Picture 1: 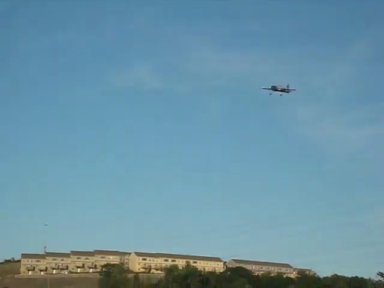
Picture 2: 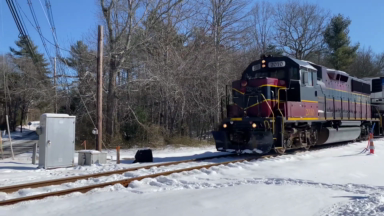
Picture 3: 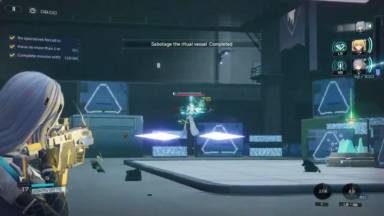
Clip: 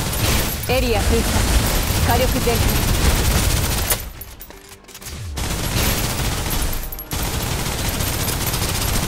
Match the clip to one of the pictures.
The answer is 3